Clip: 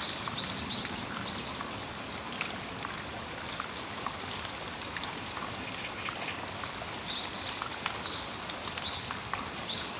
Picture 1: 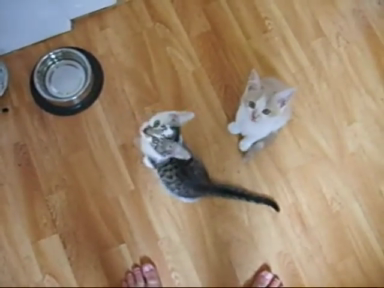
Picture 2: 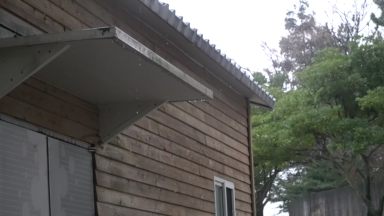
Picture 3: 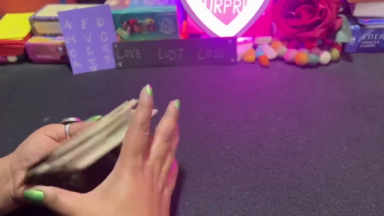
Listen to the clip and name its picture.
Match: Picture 2